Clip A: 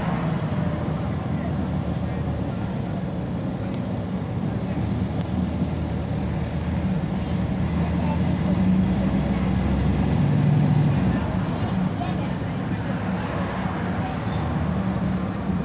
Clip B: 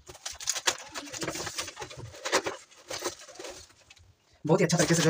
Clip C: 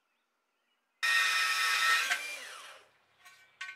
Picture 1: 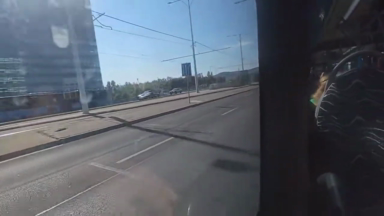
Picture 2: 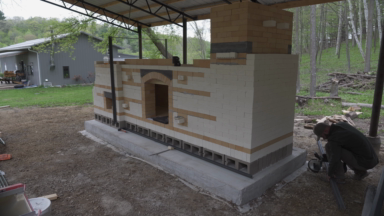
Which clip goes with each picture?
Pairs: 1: A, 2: C